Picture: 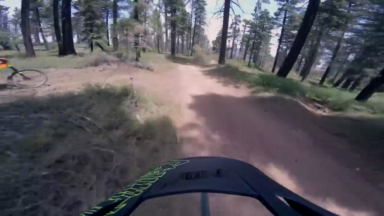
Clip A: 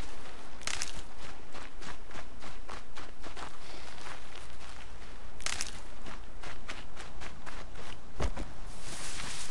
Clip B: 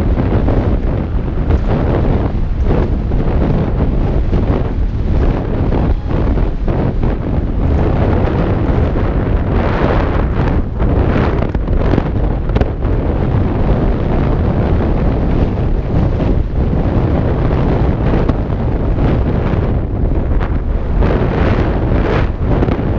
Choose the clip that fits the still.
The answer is B